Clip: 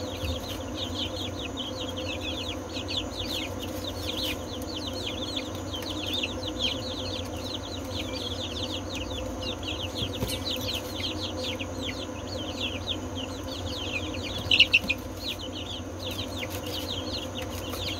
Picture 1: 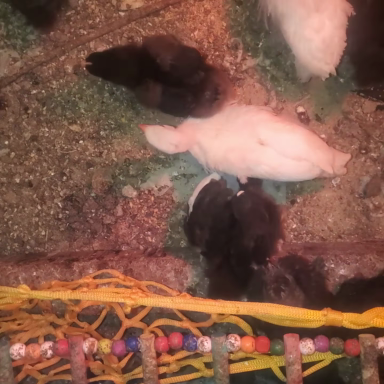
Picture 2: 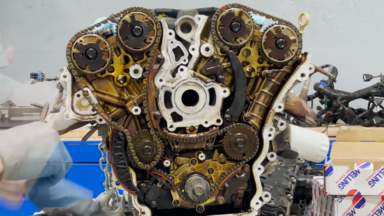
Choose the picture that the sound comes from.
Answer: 1